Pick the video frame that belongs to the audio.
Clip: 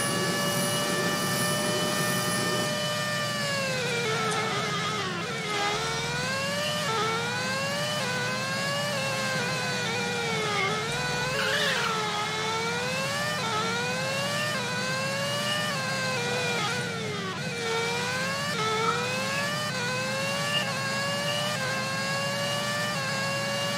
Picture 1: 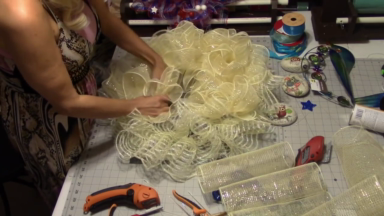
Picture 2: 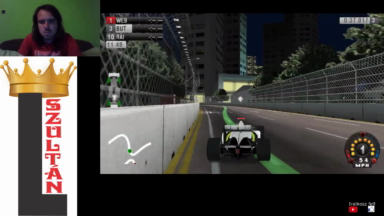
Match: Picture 2